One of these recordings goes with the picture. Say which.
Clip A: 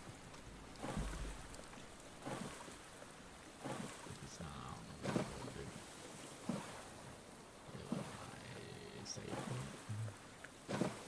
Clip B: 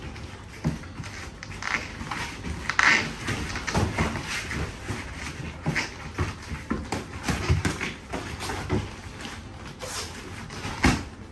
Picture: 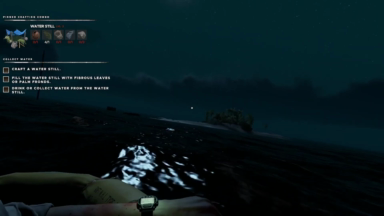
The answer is A